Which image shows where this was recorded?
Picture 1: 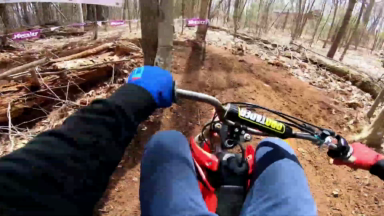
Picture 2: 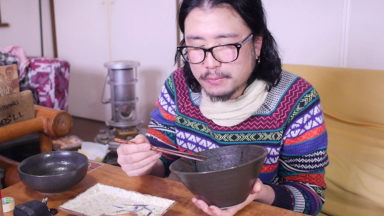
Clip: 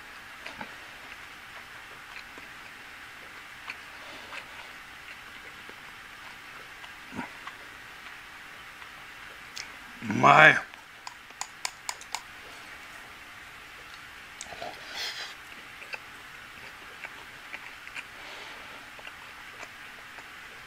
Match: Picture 2